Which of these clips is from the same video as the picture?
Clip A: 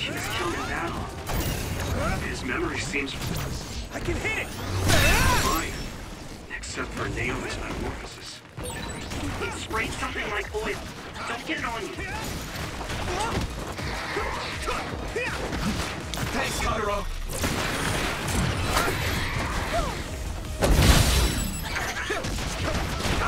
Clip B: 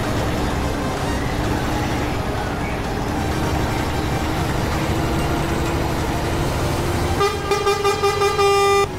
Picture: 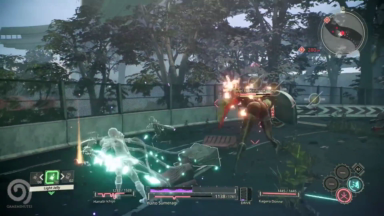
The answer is A